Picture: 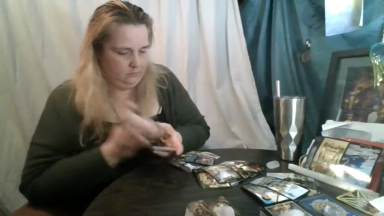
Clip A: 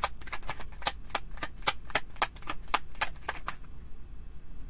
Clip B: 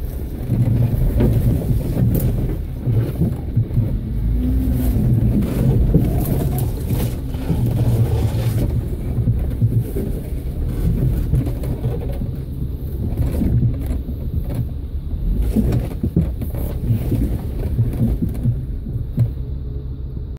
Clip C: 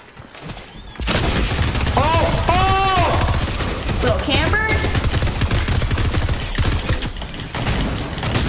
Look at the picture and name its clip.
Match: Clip A